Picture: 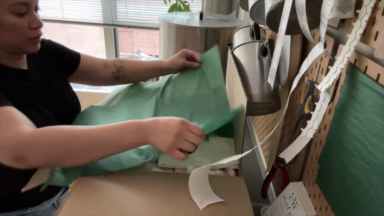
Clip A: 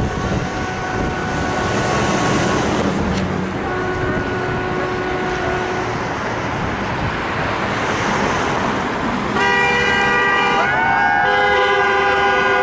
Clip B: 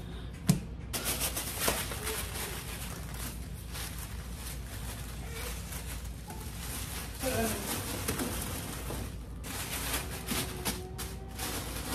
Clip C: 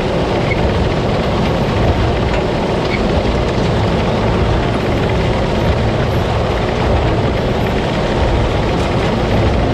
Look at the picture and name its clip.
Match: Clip B